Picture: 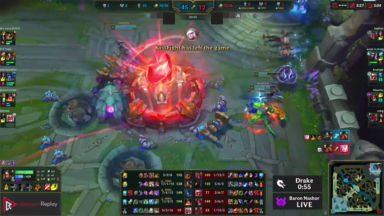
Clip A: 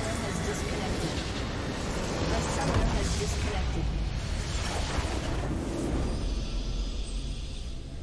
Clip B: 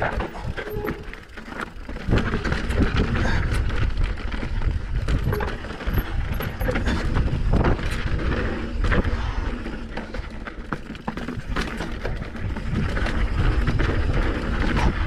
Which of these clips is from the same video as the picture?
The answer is A